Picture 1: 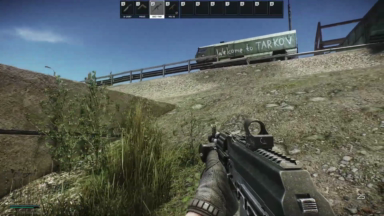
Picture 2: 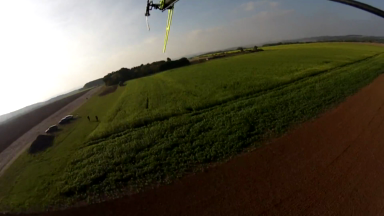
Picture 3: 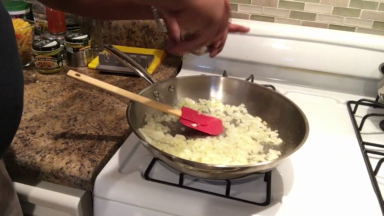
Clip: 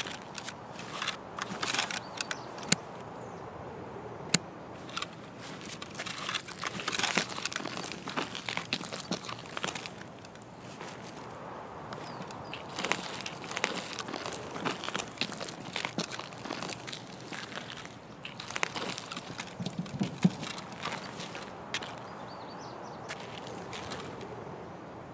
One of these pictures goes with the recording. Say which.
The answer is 1